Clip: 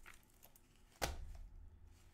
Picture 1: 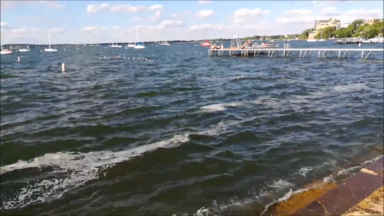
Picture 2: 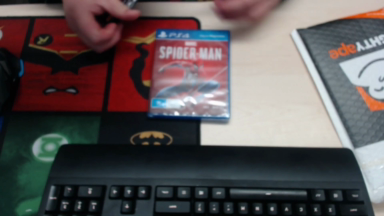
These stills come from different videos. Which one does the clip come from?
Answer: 2